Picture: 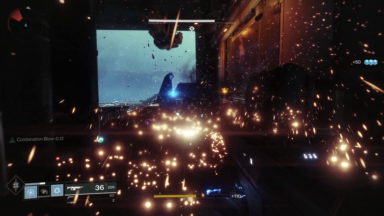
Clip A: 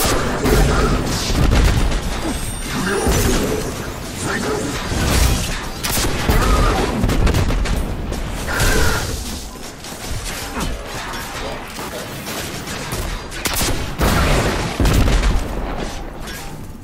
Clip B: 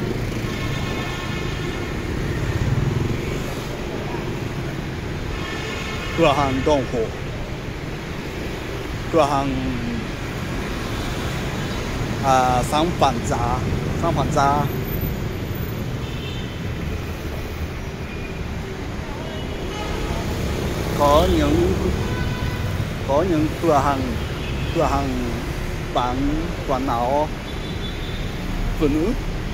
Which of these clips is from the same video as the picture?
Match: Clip A